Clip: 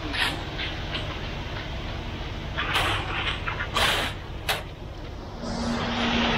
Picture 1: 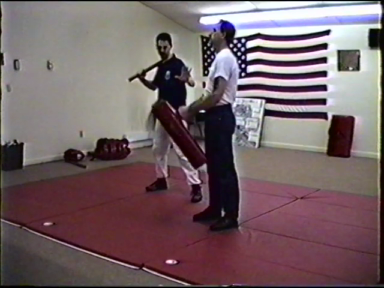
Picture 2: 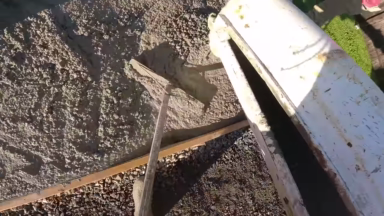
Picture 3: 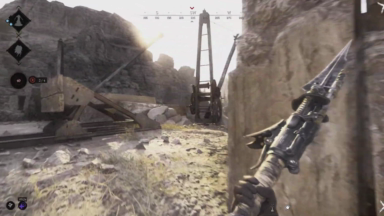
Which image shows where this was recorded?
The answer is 2